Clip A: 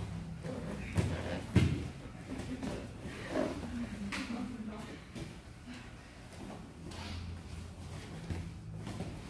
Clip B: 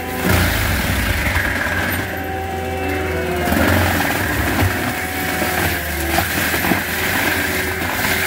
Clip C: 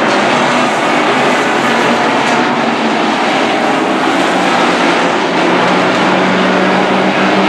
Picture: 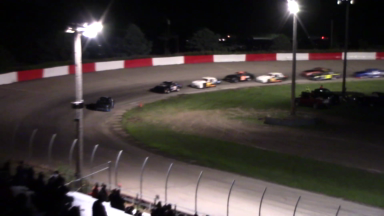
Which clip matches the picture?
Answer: C